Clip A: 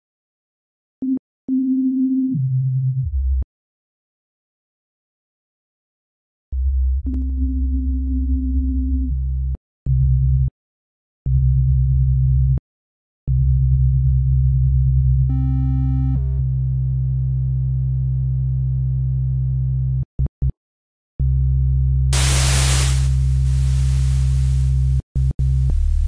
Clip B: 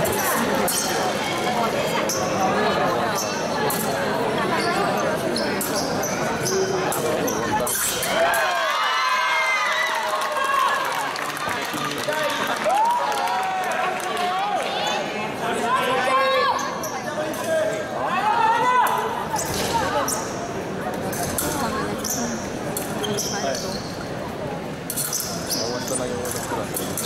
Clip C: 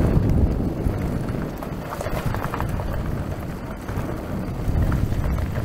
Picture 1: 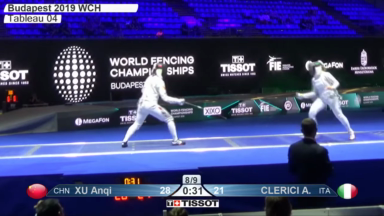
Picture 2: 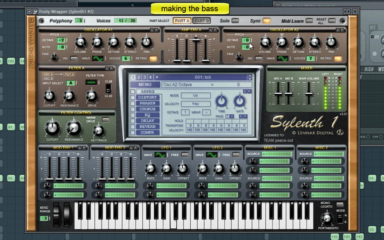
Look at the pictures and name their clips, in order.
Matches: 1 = B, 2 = A